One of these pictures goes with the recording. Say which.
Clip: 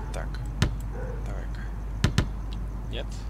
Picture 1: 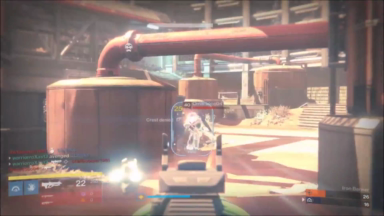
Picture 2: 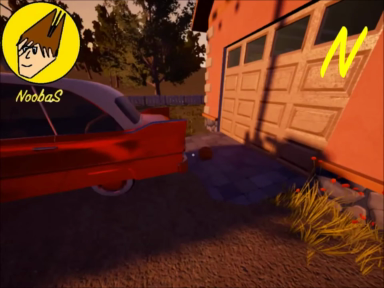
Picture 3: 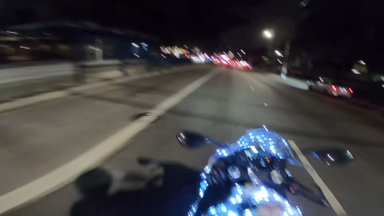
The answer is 2